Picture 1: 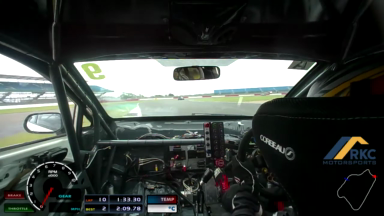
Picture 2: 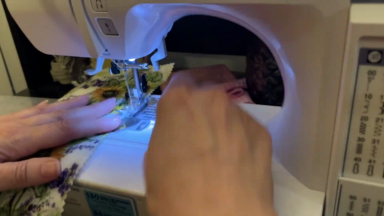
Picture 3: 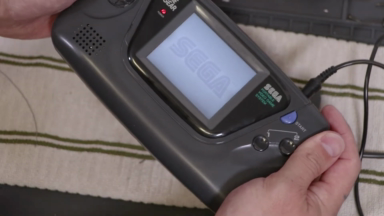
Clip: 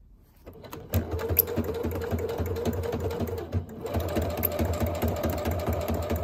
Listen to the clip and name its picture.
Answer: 2